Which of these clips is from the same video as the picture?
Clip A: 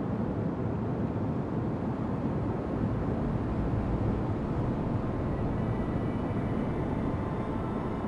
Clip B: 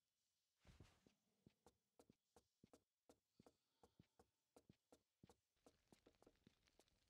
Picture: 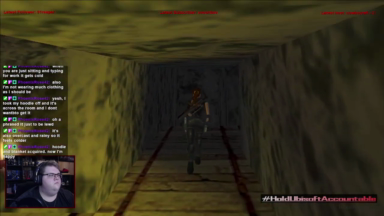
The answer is B